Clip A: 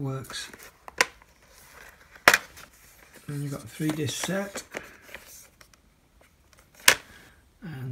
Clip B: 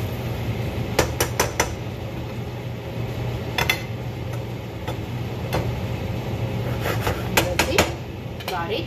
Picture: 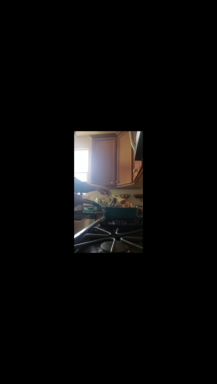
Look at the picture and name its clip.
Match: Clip B